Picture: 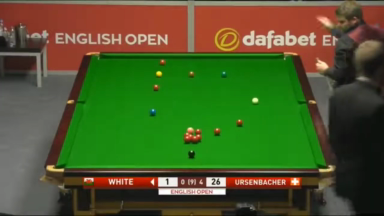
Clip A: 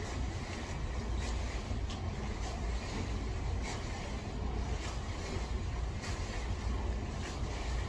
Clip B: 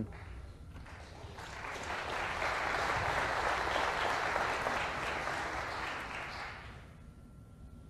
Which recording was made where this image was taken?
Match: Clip B